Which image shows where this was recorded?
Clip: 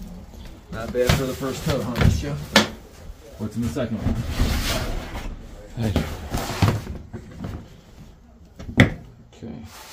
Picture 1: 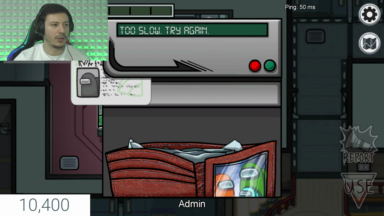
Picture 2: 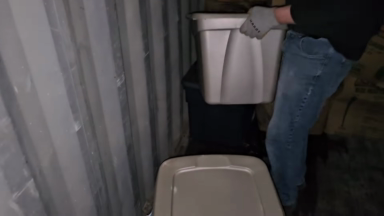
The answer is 2